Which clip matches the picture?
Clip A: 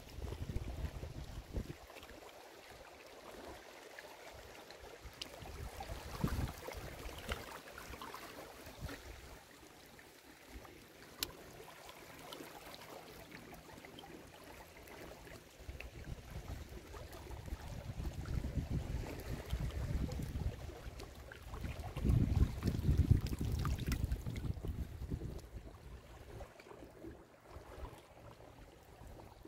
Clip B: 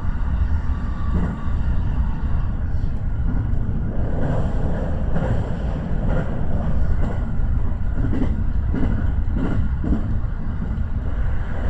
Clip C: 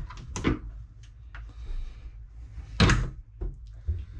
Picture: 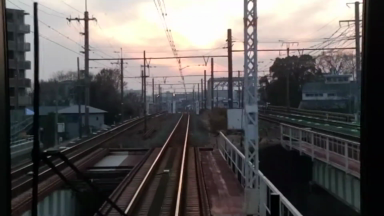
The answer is B